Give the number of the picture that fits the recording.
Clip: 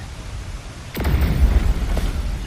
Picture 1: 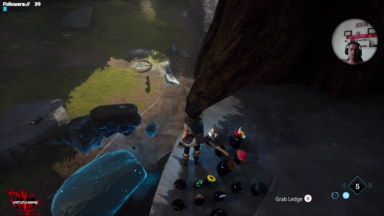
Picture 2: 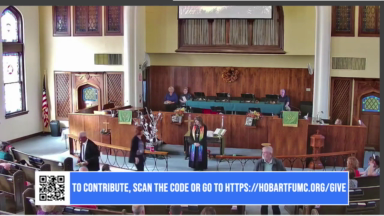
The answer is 1